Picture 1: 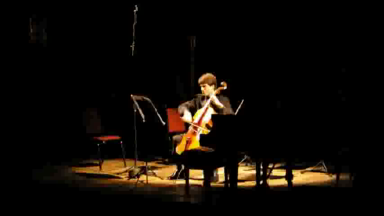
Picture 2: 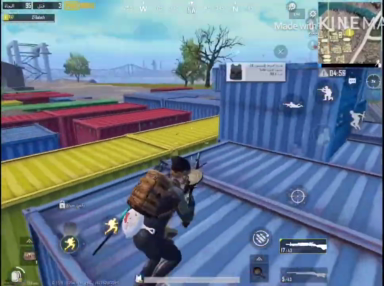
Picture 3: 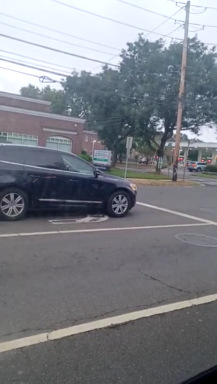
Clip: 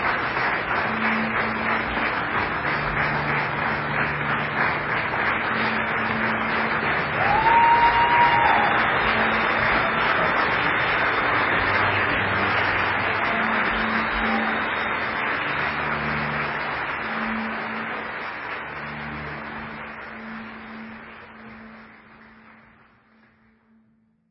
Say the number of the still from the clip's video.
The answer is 1